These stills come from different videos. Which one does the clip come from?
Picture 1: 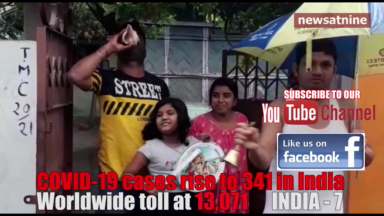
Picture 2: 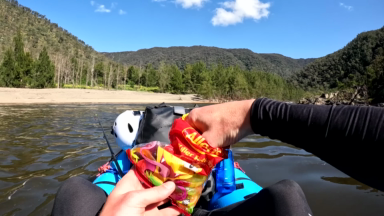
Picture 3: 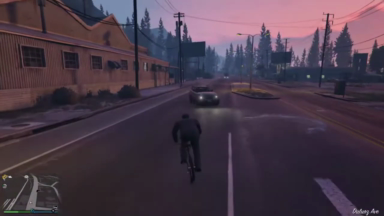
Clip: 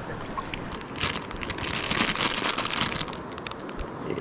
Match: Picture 2